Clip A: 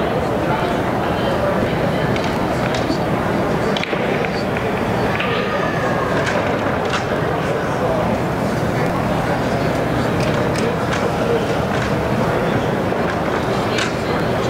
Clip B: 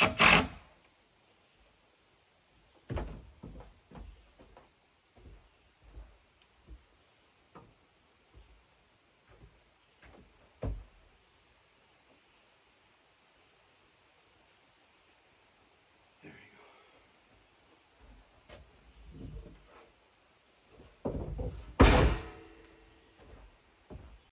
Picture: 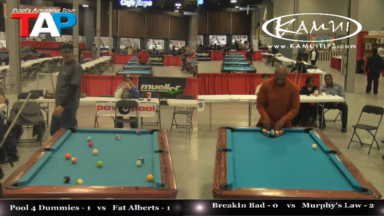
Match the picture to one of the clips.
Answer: A